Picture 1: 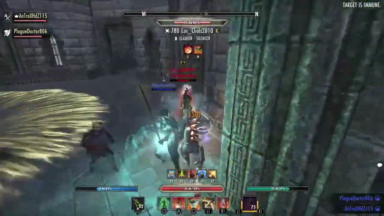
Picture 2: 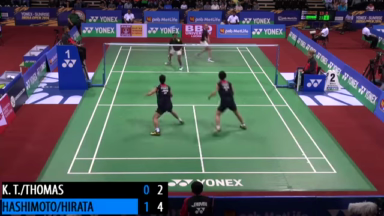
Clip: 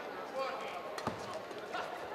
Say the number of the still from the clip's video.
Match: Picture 2